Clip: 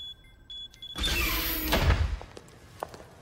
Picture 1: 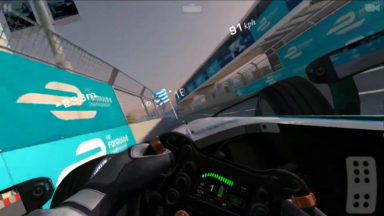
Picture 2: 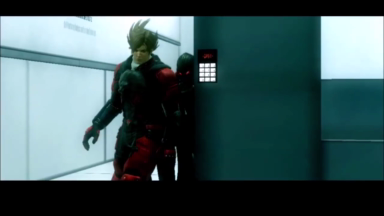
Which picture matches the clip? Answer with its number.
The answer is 2